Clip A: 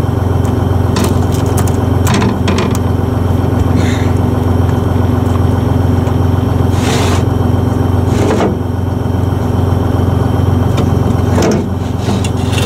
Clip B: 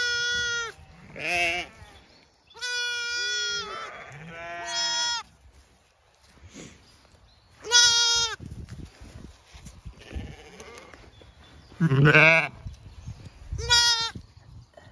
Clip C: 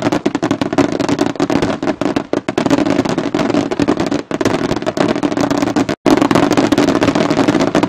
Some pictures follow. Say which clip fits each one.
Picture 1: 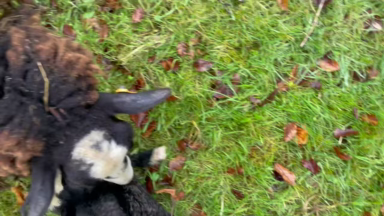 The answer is B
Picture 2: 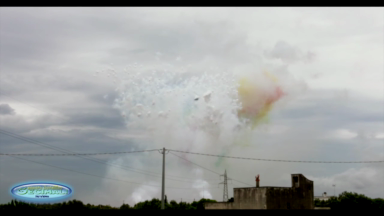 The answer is C